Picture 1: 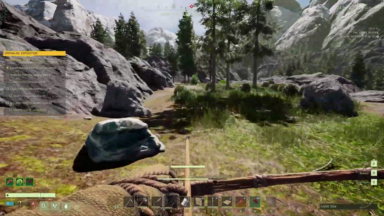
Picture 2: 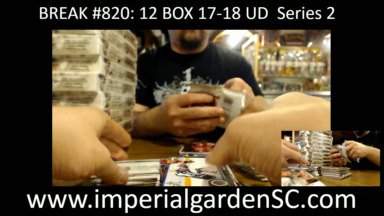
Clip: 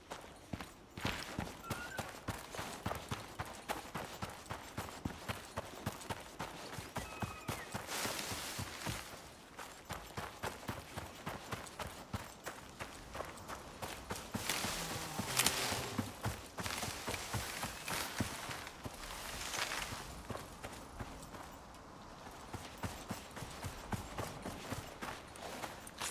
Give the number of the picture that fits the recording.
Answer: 1